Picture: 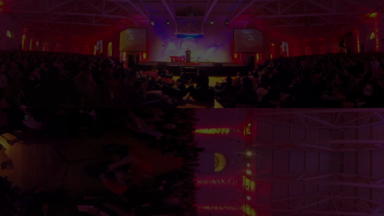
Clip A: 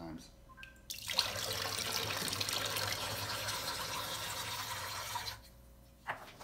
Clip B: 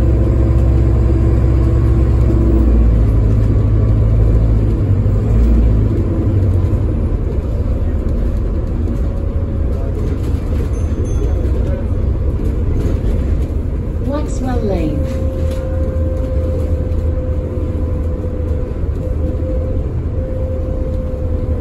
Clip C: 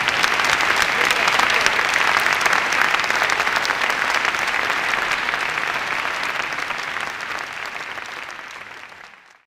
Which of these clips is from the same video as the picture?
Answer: C